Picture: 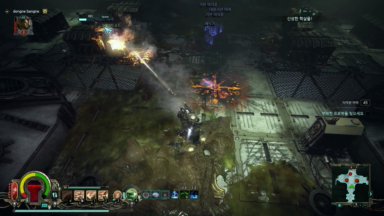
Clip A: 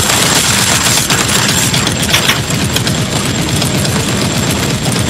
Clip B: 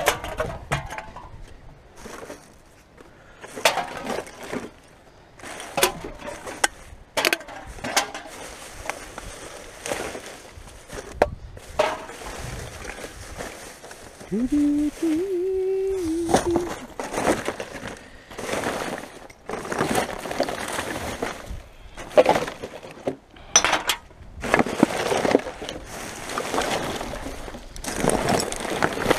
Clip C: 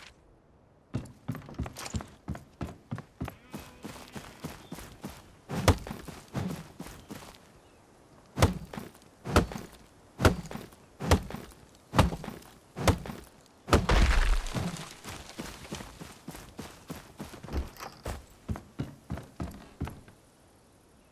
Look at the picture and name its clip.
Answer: A